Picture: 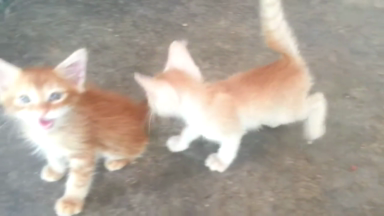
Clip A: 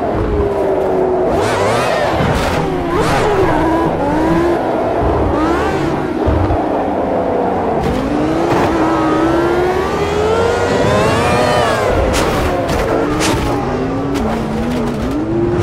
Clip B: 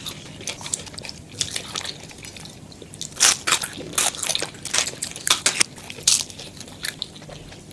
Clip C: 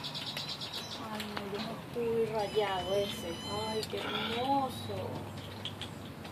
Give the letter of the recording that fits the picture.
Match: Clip C